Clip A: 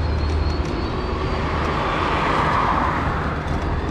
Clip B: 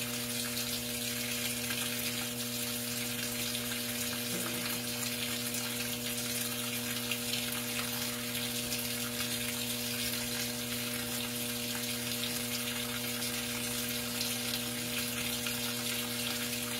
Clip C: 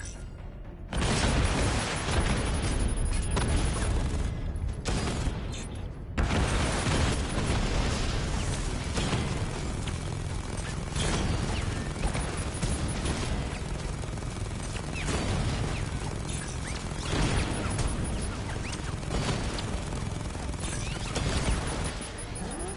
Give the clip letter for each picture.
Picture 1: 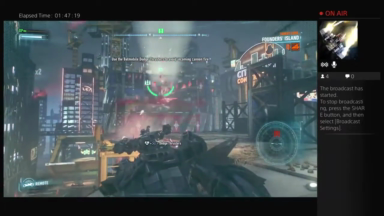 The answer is C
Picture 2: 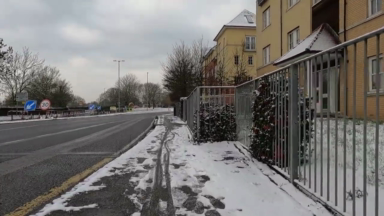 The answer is A